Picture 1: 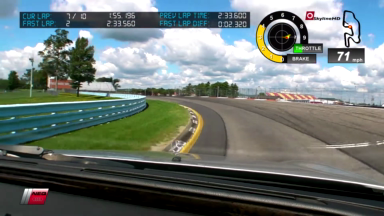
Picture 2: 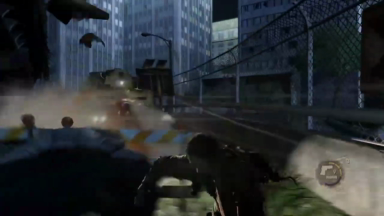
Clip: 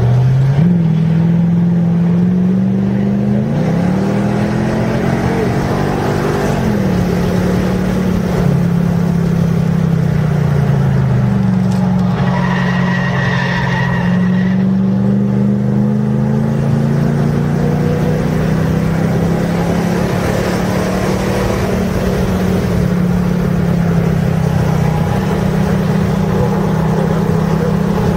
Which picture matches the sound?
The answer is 1